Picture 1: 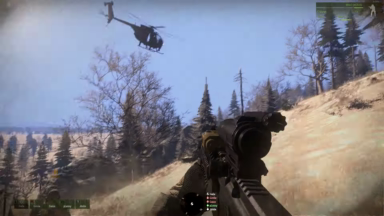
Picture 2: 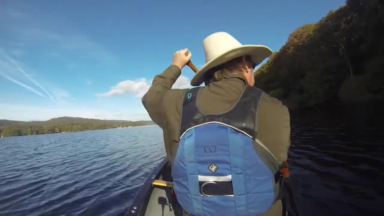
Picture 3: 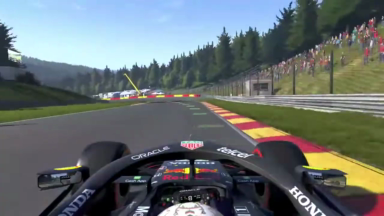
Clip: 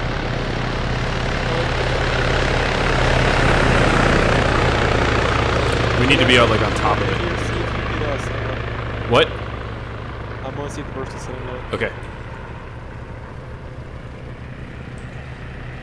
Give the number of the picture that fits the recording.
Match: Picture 1